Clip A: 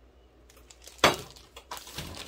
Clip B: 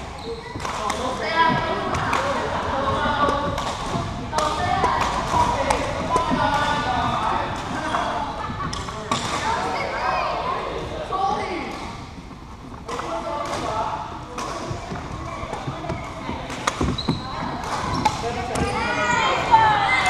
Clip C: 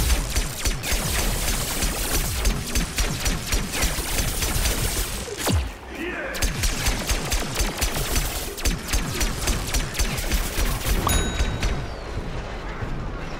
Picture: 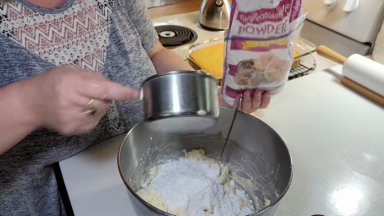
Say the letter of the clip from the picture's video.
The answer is A